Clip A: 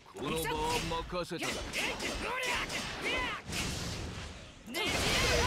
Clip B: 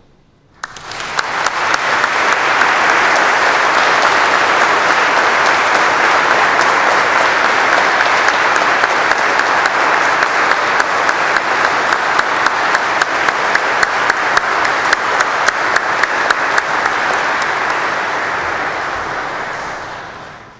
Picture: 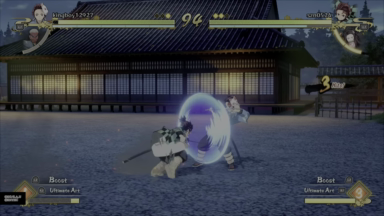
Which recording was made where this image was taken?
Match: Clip A